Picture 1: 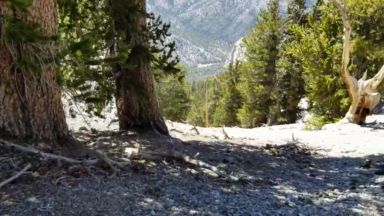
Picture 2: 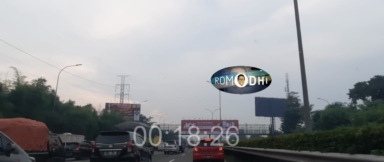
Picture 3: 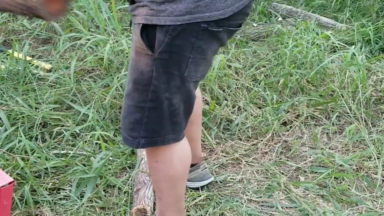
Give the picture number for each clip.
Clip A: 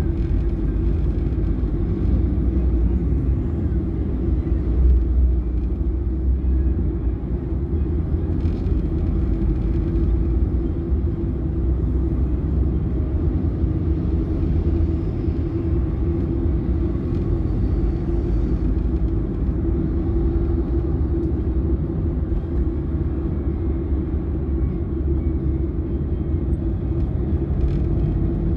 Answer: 2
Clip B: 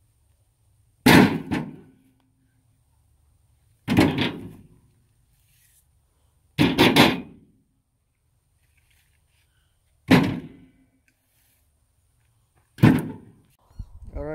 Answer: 3